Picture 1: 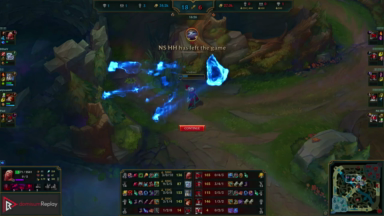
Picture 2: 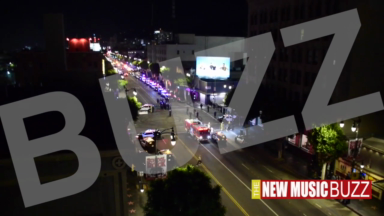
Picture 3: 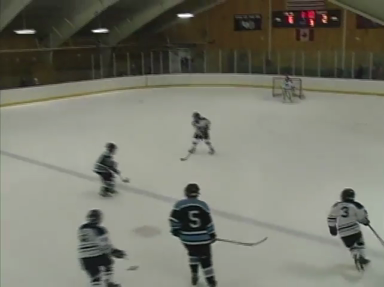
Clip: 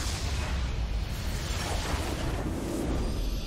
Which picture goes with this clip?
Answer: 1